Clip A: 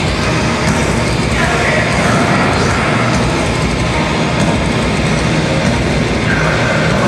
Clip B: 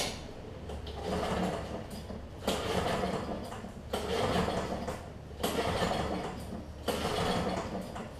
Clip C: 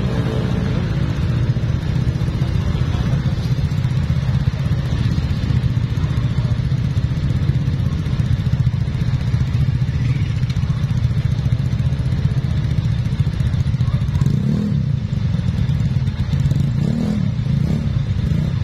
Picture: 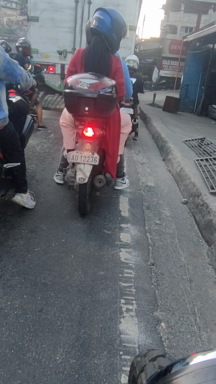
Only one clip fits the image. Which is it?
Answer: C